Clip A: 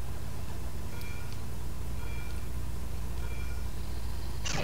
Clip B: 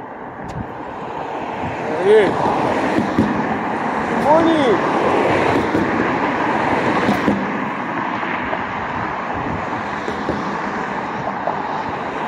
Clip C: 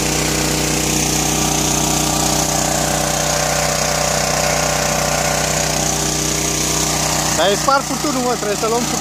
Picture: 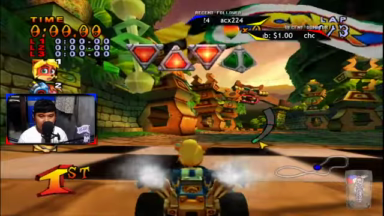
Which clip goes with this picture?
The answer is A